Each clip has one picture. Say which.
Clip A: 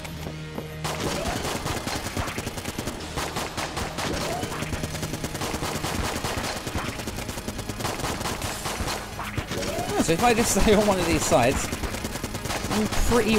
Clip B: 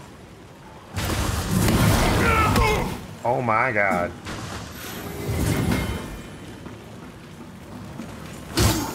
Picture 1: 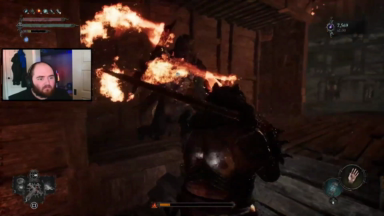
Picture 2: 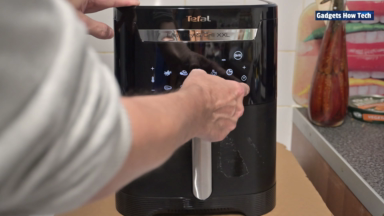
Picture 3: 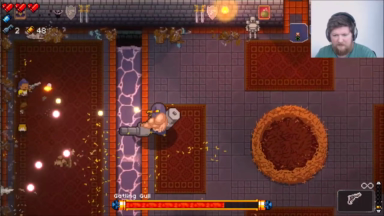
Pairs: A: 3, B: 1